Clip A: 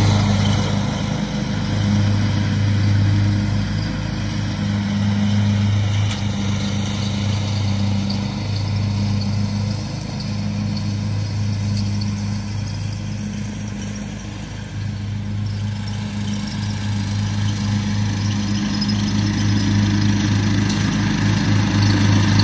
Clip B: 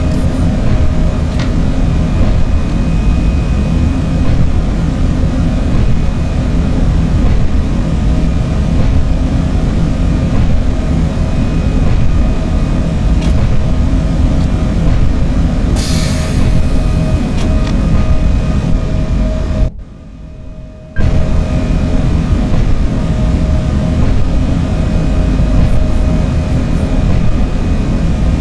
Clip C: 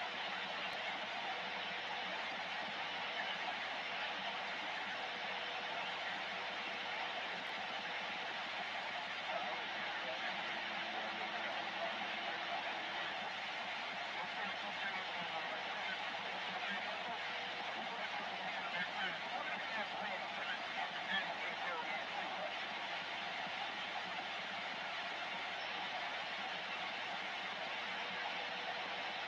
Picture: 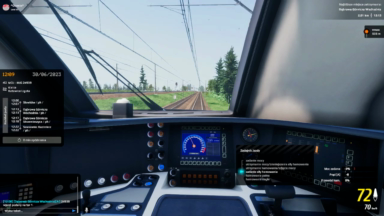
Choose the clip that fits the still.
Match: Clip B